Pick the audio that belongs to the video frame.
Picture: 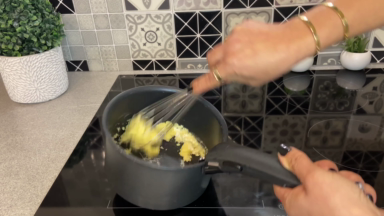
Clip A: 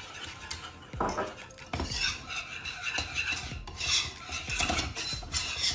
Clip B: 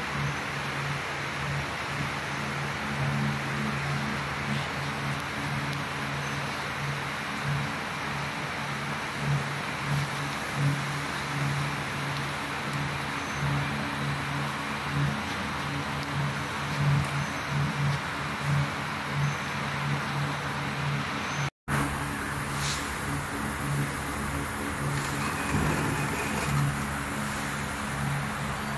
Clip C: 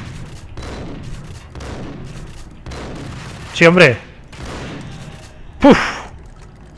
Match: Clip A